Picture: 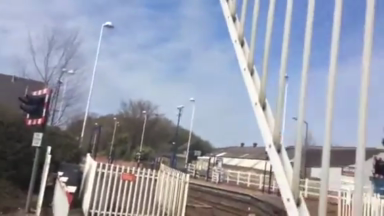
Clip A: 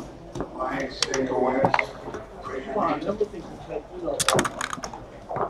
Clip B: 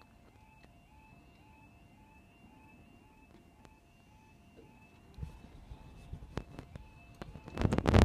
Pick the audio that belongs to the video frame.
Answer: B